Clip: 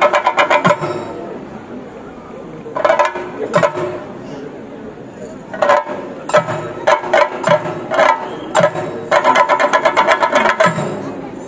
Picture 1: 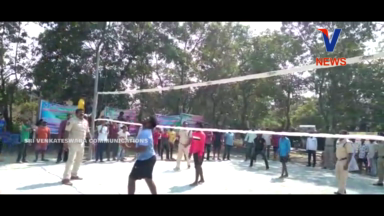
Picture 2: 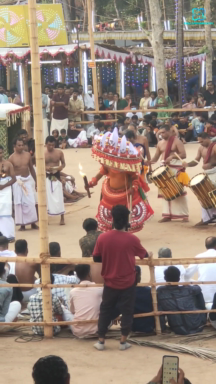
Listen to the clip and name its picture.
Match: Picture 2